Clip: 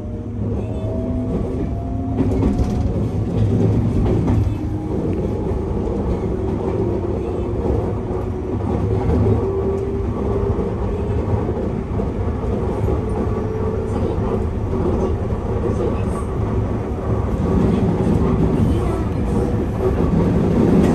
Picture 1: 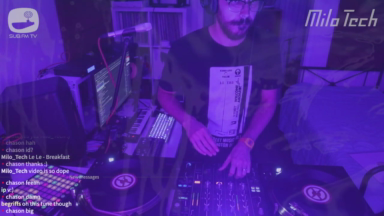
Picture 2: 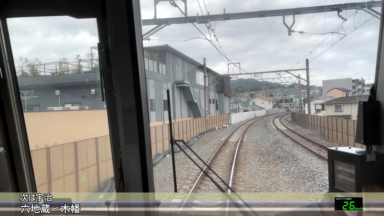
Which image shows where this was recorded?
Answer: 2